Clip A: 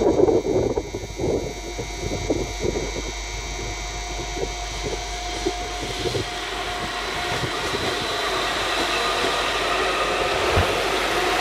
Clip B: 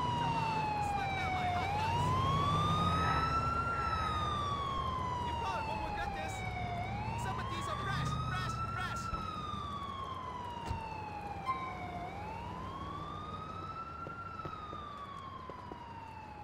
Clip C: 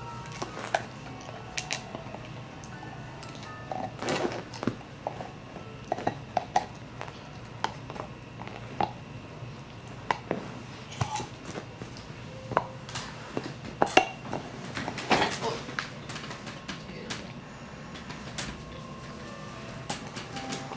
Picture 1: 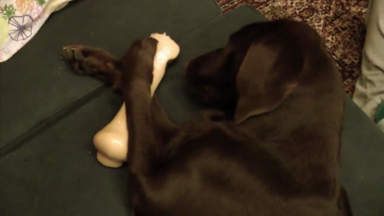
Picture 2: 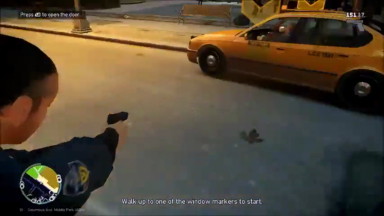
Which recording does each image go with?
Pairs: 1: C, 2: B